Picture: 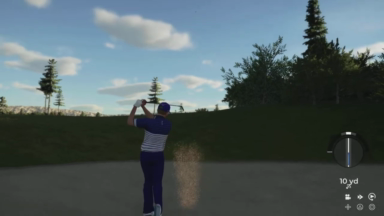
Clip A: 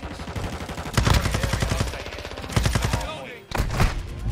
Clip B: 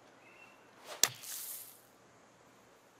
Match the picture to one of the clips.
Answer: B